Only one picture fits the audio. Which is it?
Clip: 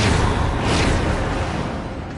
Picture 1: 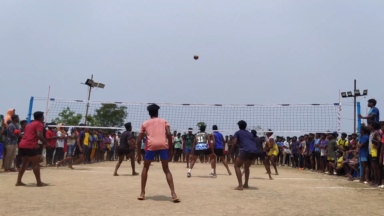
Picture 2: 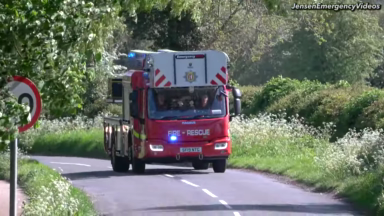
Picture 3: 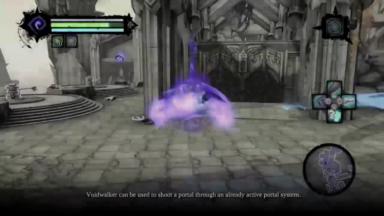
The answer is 3